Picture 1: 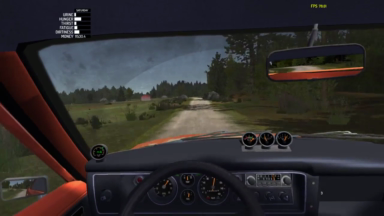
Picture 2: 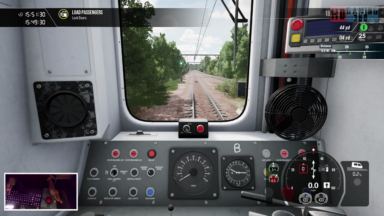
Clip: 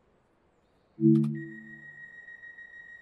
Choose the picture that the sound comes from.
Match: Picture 2